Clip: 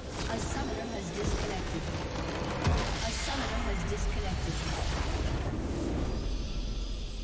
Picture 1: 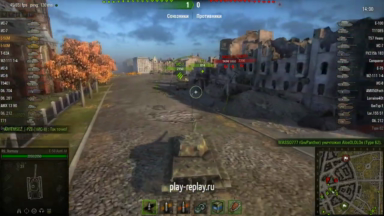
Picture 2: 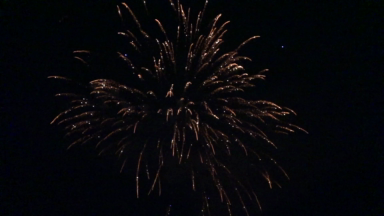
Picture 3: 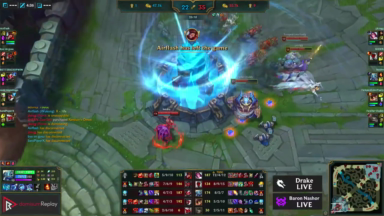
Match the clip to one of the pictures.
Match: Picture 3